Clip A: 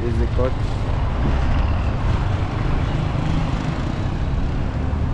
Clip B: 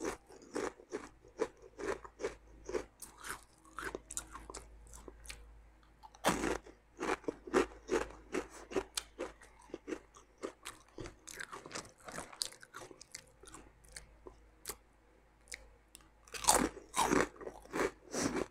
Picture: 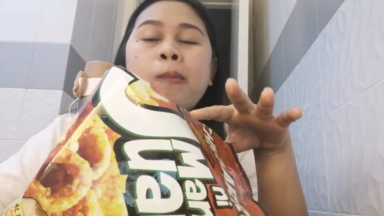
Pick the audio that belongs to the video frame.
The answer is B